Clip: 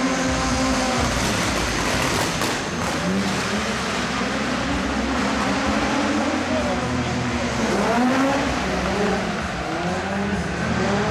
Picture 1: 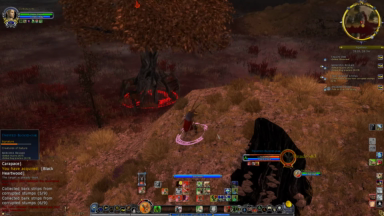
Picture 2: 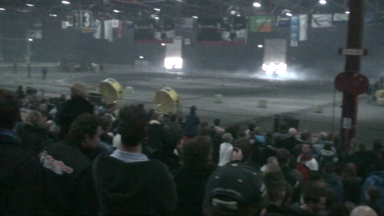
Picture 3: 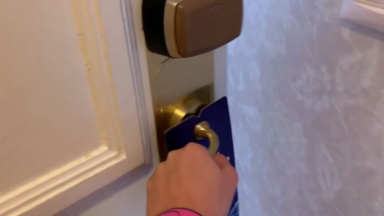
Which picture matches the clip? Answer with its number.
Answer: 2